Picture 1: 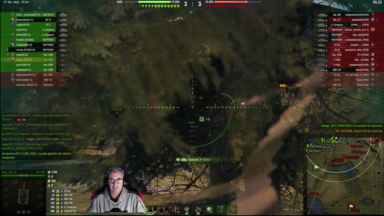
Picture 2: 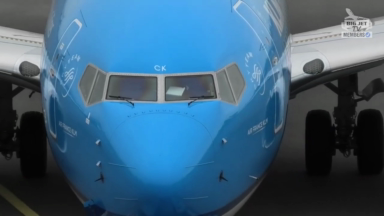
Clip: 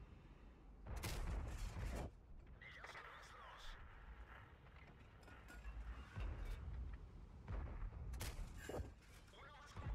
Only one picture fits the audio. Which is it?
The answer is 1